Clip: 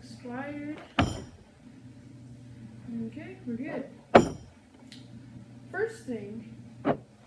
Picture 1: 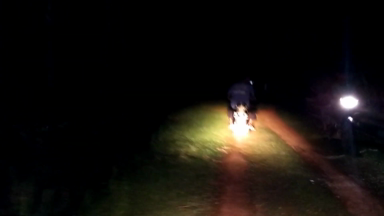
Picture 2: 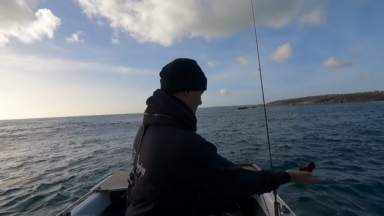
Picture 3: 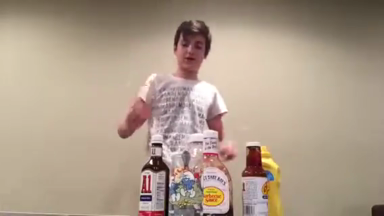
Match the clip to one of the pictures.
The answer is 3